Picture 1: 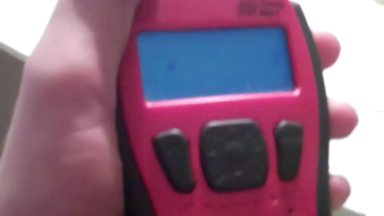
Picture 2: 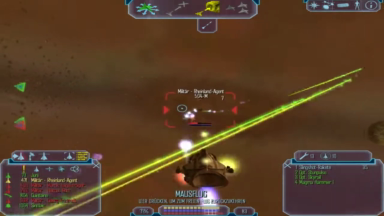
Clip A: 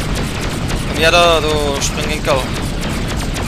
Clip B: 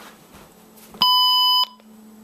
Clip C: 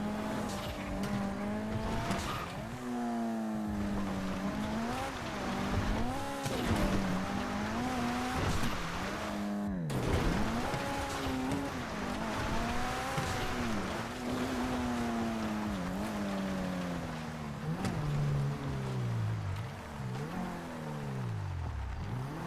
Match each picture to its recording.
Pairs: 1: B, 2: A